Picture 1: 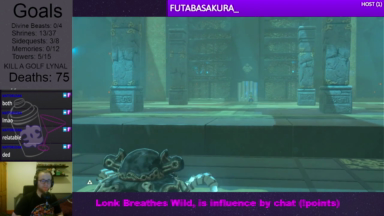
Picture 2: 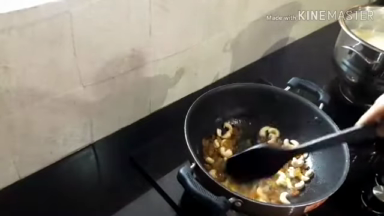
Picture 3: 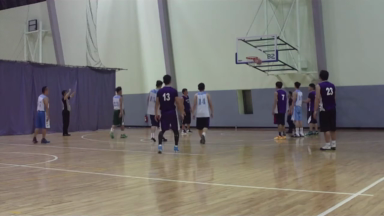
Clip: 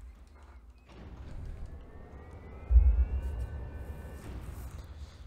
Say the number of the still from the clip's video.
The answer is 1